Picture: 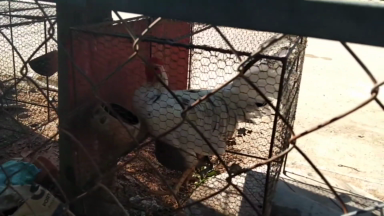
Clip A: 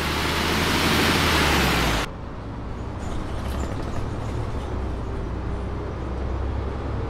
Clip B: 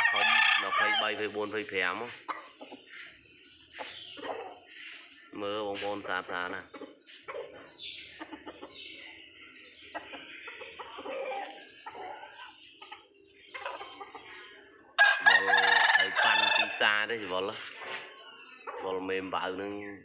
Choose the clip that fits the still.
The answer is B